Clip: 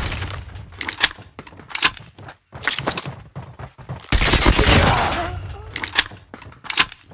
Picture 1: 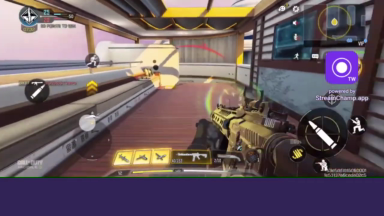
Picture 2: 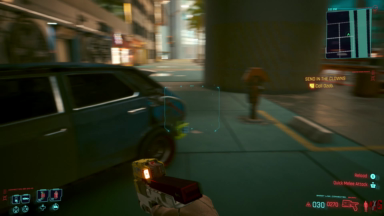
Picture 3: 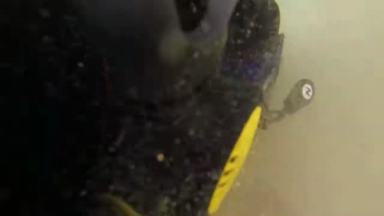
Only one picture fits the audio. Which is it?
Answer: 1